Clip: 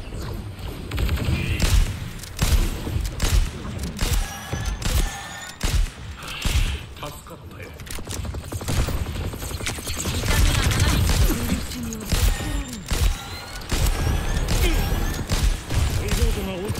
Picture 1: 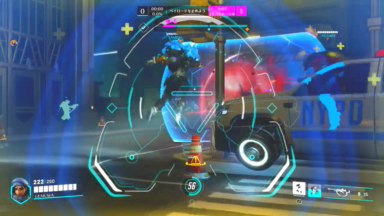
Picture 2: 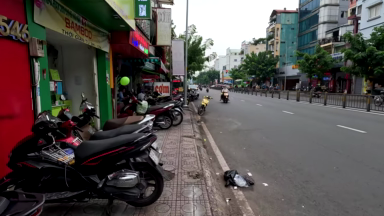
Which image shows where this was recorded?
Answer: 1